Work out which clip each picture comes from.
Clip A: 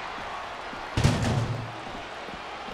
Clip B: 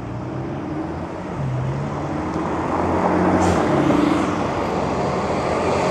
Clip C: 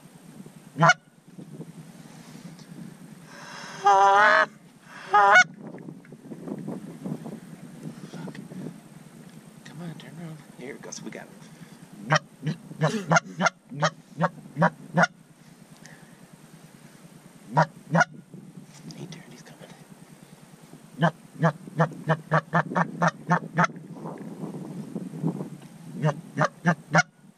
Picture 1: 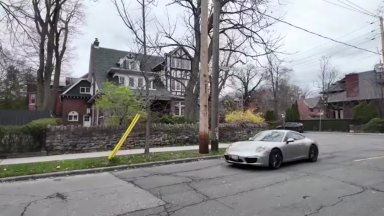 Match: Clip B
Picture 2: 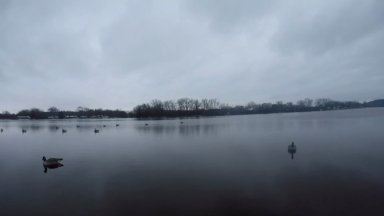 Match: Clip C